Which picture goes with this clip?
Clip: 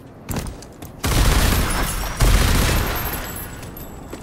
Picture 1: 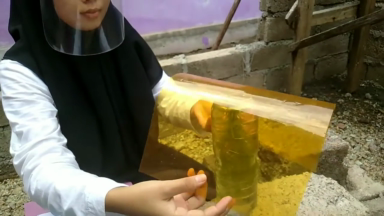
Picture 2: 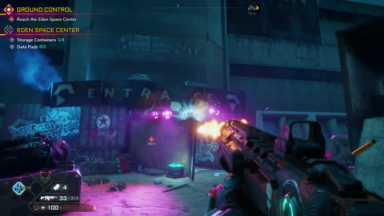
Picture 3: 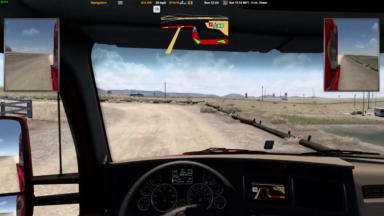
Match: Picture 2